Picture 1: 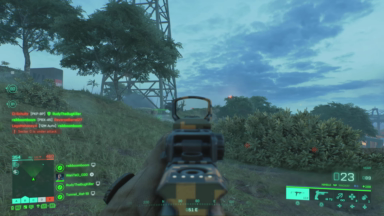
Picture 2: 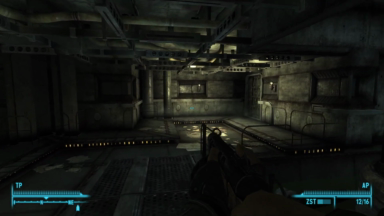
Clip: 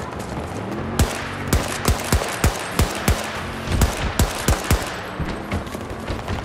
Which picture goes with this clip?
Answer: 1